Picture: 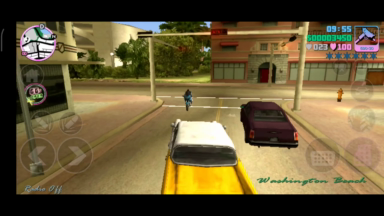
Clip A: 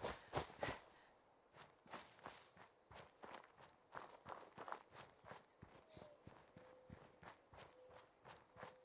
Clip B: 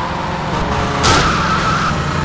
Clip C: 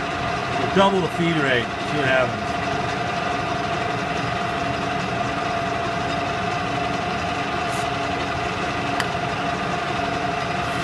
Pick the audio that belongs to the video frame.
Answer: B